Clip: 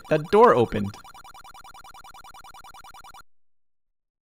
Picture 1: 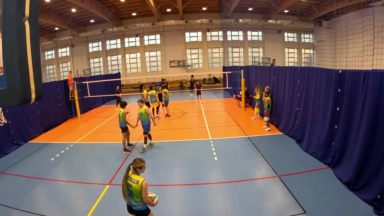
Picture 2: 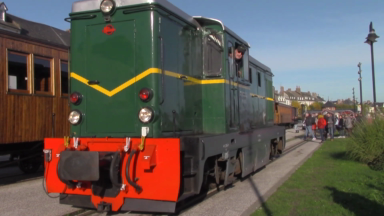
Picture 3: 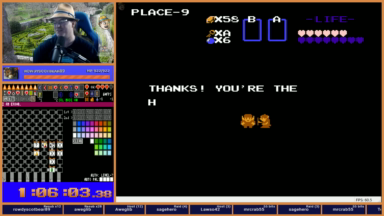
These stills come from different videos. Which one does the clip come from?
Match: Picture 3